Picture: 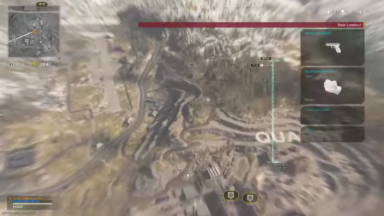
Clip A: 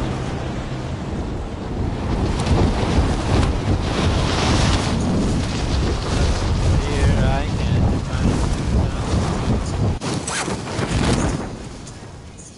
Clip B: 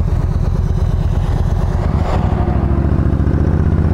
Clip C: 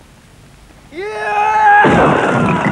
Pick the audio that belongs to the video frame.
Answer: A